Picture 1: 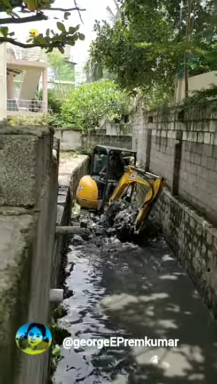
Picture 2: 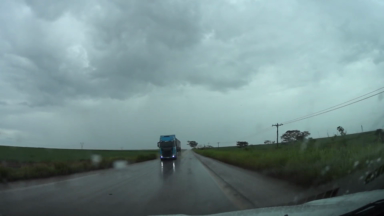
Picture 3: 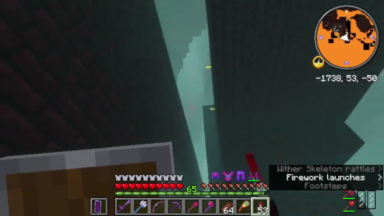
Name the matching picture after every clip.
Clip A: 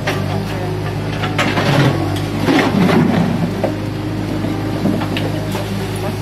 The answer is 1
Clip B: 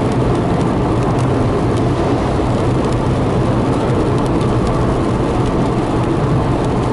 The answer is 2